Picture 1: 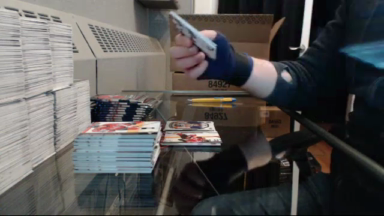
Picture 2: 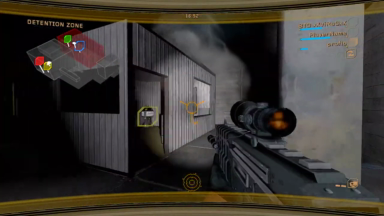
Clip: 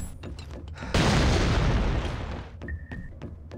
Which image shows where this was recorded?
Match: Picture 2